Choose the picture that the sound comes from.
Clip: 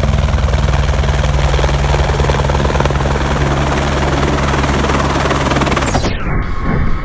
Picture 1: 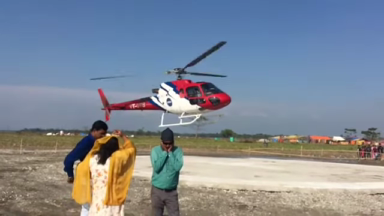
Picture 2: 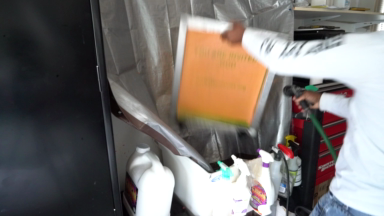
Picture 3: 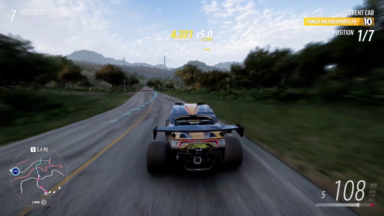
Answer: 1